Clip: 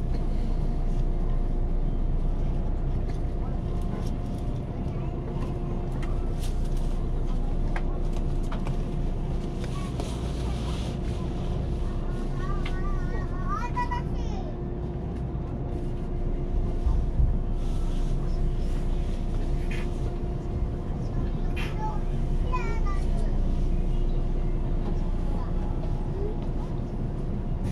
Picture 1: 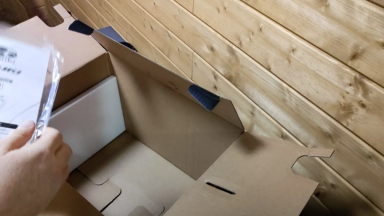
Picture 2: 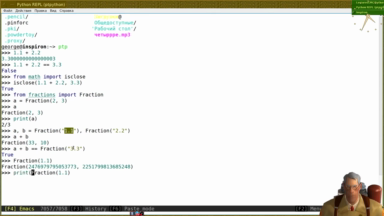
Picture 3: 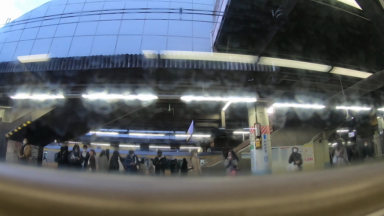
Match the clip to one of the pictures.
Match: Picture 3